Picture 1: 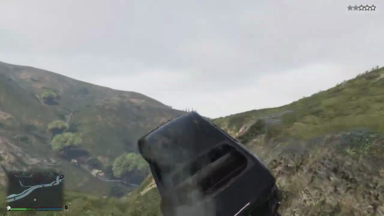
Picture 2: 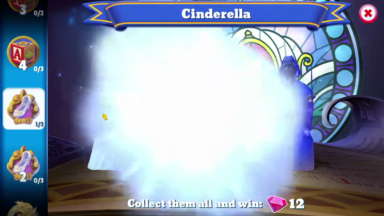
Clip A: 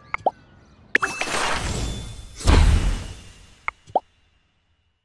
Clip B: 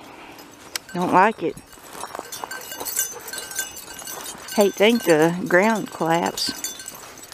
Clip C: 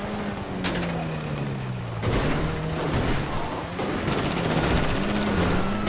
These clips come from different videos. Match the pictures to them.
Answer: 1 C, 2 A